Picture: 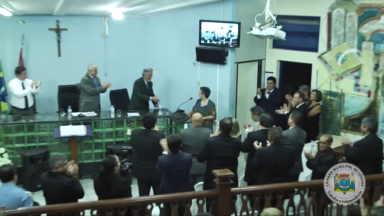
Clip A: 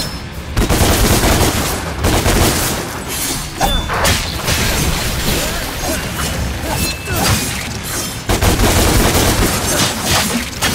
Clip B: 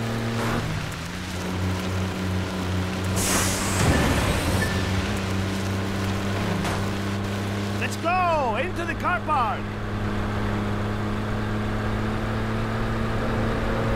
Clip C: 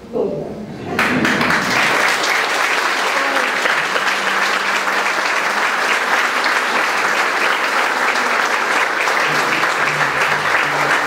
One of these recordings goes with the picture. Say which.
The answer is C